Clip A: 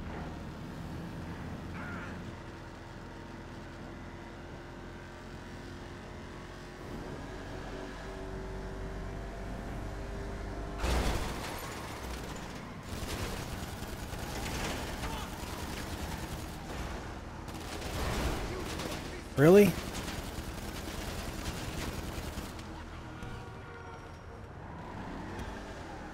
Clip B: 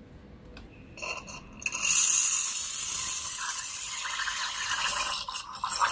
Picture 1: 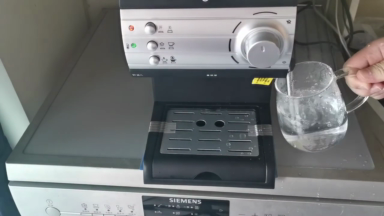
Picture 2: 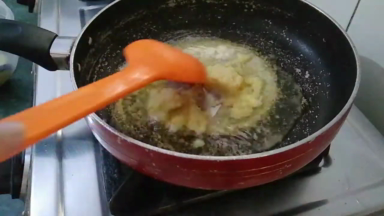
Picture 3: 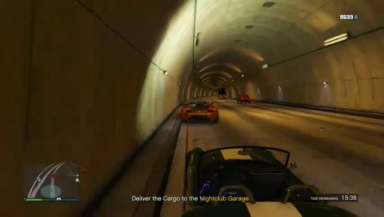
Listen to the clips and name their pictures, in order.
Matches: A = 3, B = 1